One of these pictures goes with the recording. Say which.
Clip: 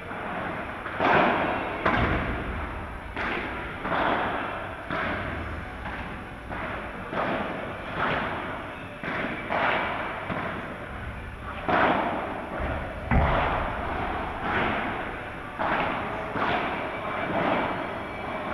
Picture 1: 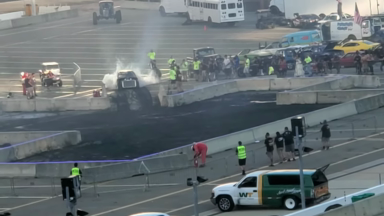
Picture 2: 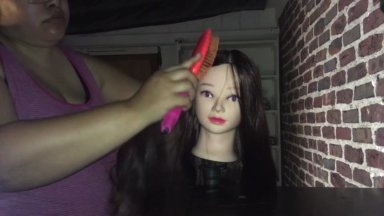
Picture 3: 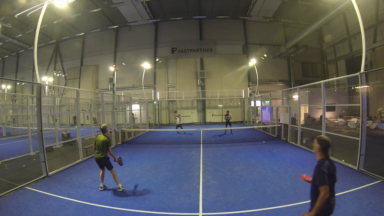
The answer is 3